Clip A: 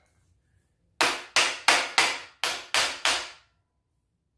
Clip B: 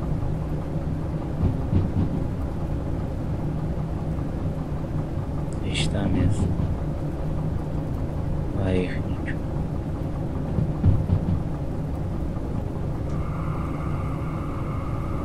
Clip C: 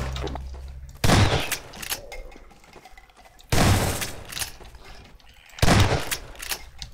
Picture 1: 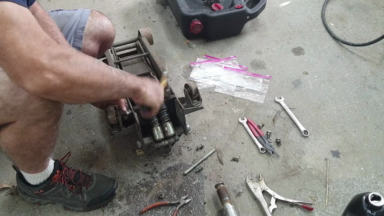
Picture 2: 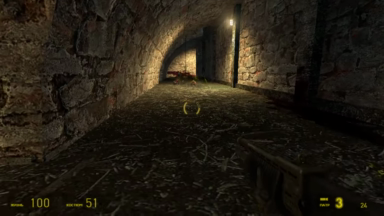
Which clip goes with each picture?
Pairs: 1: A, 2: C